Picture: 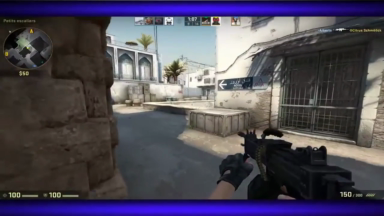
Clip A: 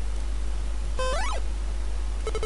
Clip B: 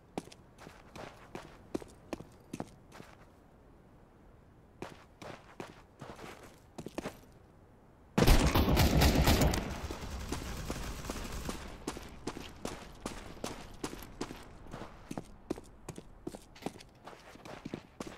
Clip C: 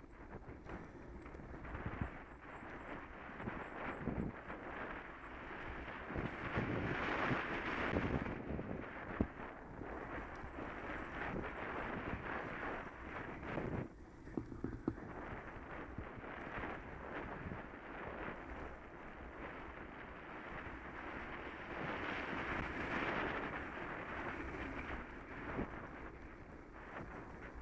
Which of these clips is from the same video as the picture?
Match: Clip B